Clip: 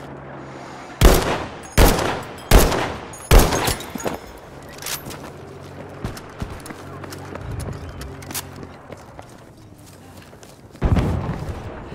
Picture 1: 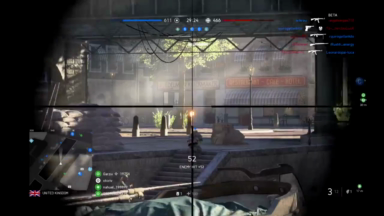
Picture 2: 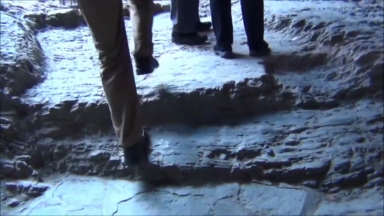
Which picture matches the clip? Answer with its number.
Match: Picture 1